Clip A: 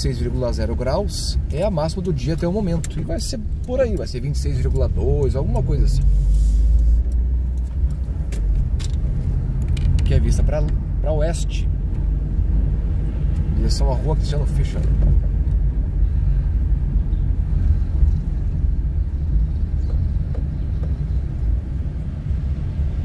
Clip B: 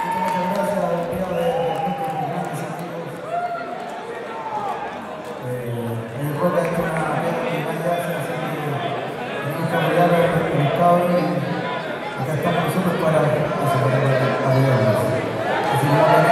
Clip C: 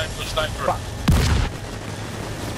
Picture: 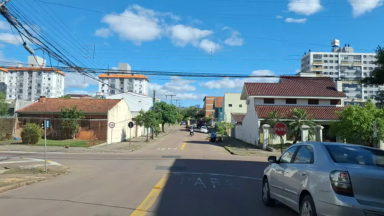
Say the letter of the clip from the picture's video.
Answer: A